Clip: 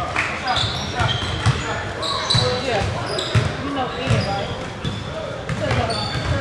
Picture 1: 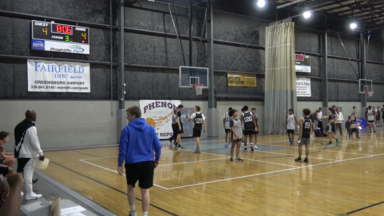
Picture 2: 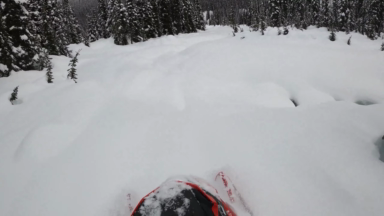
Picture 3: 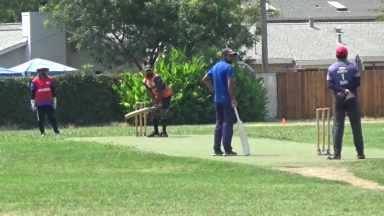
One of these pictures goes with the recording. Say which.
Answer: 1